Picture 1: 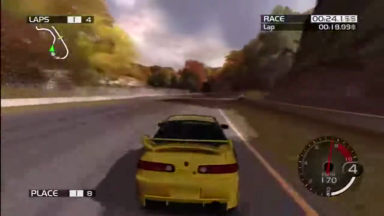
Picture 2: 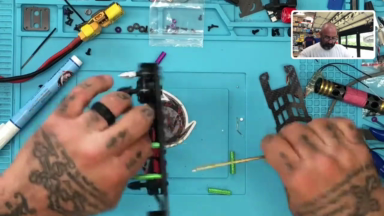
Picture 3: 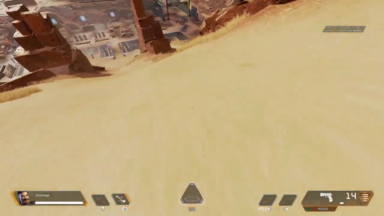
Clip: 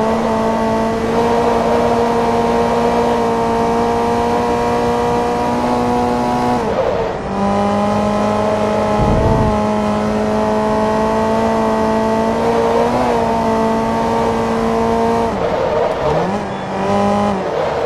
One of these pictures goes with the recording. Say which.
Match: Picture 1